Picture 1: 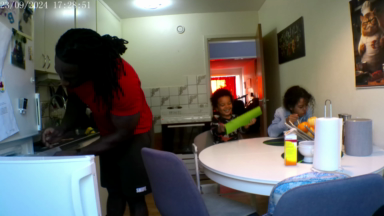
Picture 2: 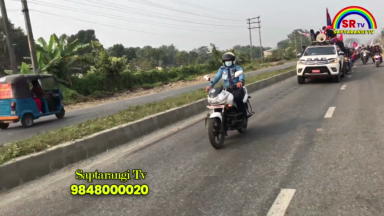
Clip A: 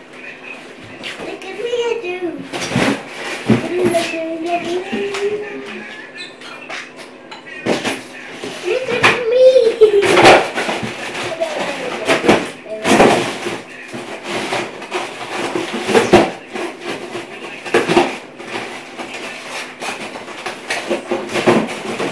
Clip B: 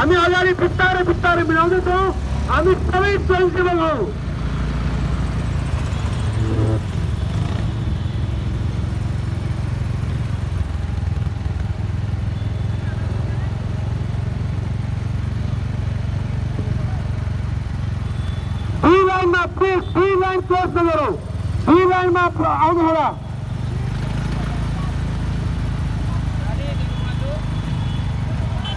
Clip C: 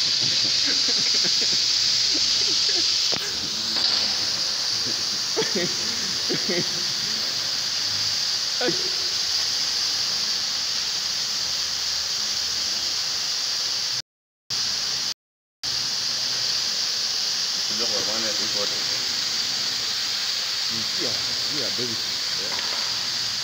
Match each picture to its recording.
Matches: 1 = A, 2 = B